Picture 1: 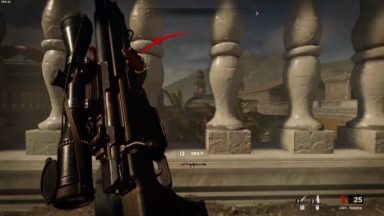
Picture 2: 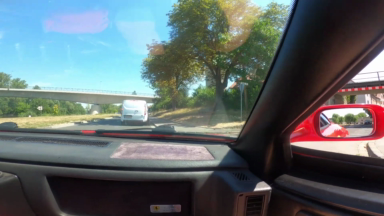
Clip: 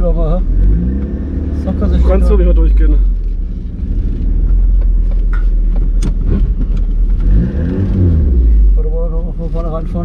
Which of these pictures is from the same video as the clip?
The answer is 2